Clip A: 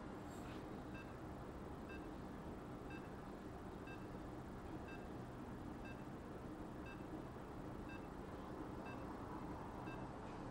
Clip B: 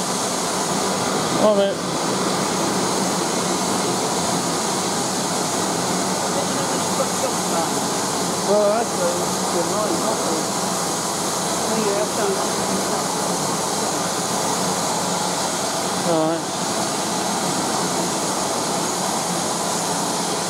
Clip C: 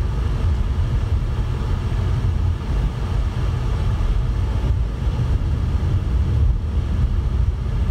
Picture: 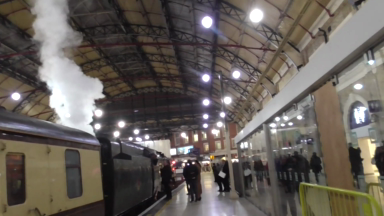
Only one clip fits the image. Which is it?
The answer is B